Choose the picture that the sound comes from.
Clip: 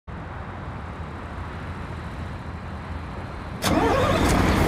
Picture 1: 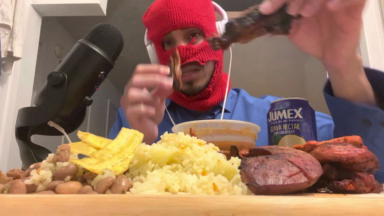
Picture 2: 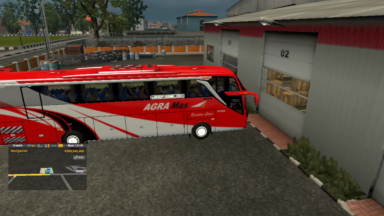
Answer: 2